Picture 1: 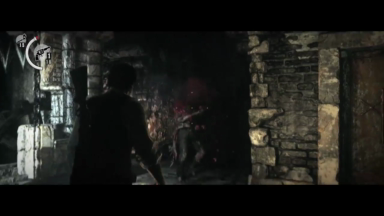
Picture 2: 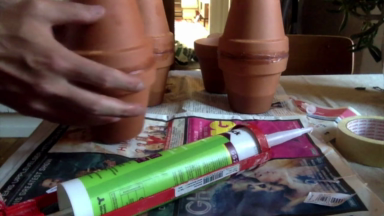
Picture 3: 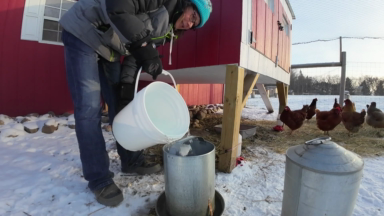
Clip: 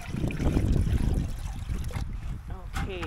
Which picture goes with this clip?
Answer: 3